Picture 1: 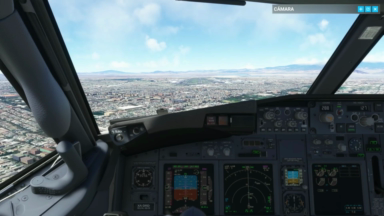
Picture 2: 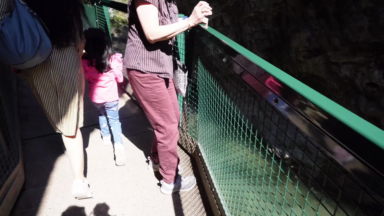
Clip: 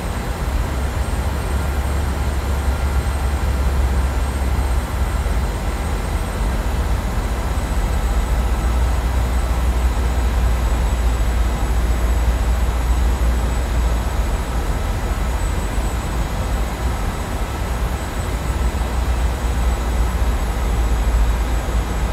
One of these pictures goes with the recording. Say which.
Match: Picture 1